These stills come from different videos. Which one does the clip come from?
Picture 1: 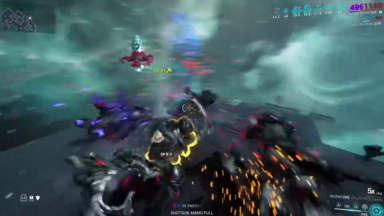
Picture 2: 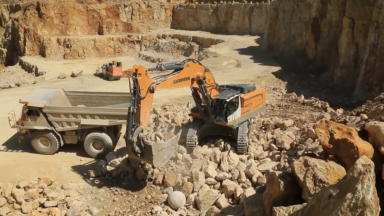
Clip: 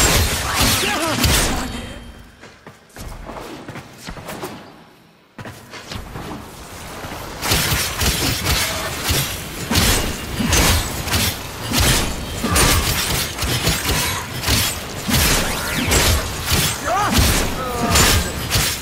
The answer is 1